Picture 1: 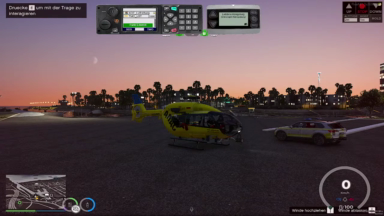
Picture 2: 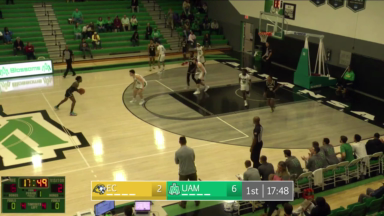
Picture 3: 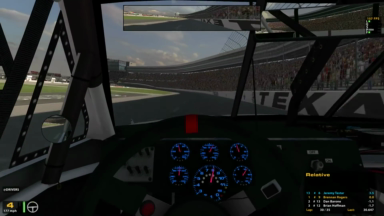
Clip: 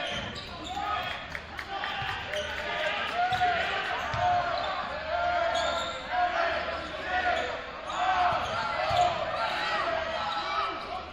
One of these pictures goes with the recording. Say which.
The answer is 2